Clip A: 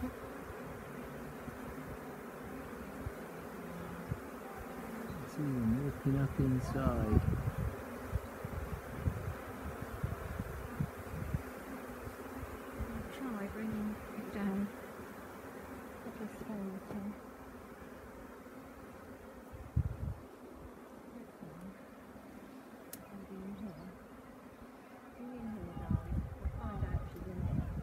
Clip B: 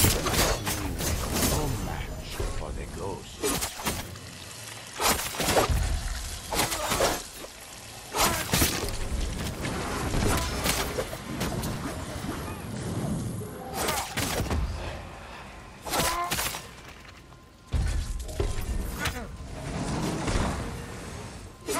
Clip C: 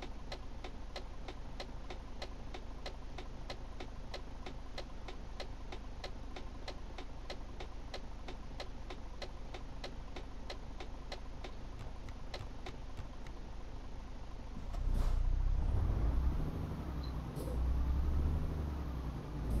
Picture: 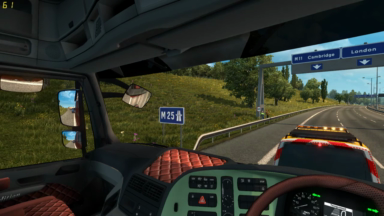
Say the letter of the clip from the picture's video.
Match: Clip C